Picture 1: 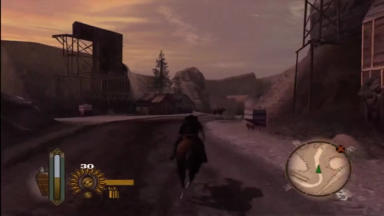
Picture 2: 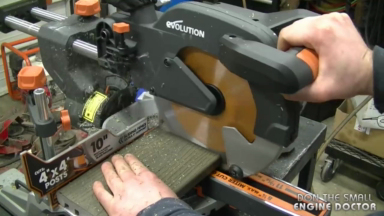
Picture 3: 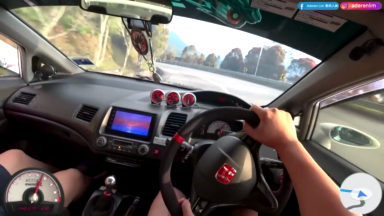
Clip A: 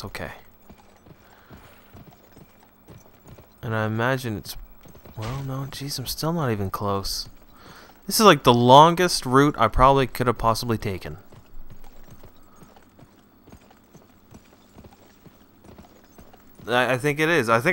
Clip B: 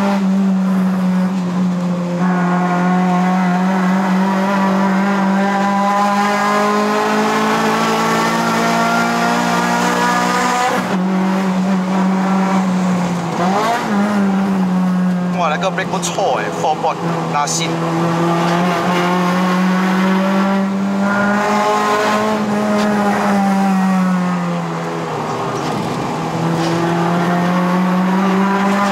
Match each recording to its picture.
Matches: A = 1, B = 3